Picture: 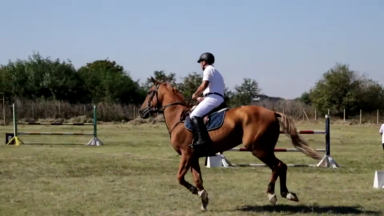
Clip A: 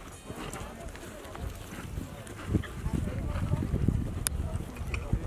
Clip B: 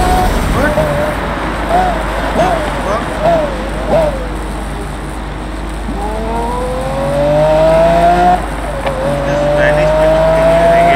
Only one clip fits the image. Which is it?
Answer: A